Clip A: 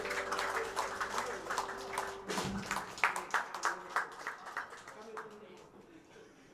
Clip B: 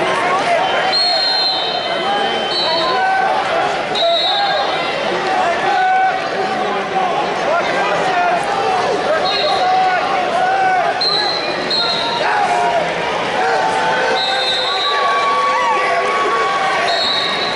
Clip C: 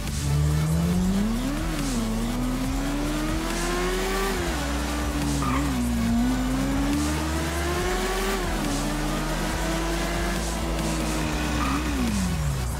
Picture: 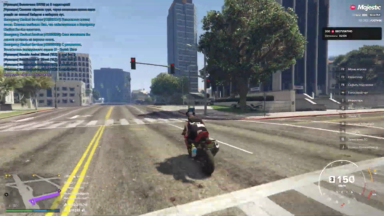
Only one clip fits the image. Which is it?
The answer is C